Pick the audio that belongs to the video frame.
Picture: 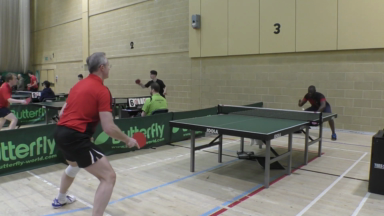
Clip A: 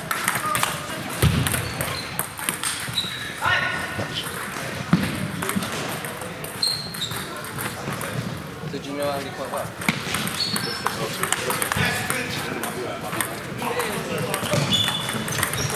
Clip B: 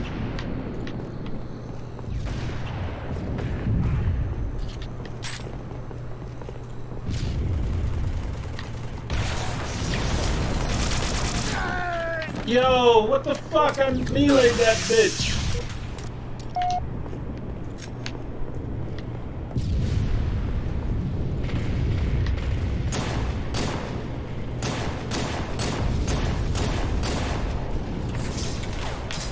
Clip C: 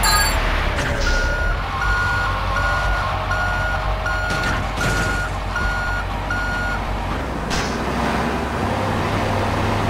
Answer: A